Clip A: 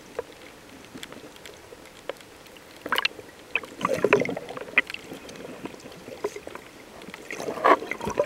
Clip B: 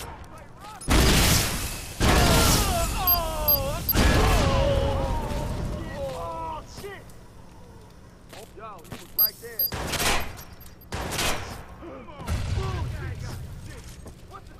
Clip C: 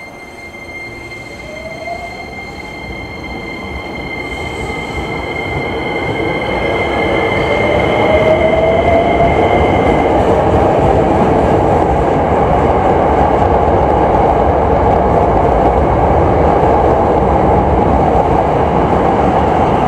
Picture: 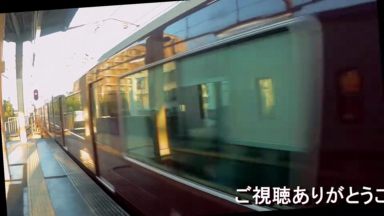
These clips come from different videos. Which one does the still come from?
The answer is C